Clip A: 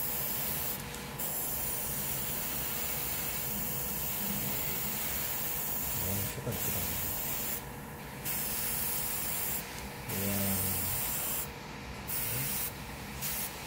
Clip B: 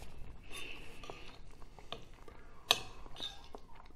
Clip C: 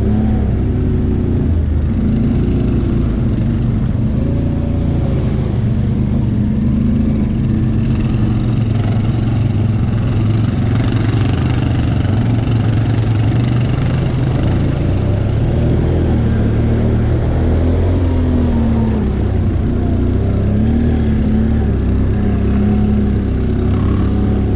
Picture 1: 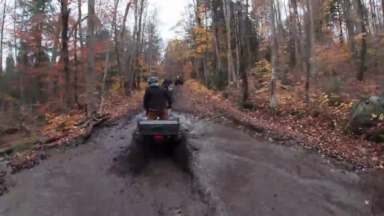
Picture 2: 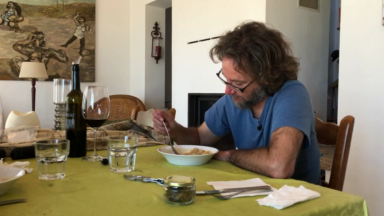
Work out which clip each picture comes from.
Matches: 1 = C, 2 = B